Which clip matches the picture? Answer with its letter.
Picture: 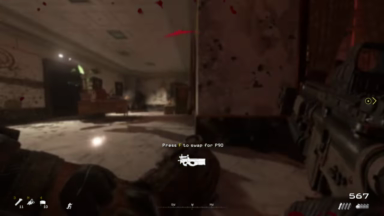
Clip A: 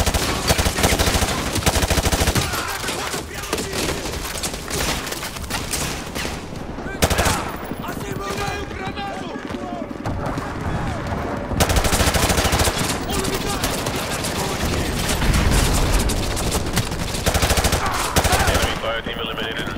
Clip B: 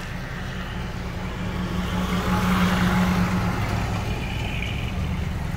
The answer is A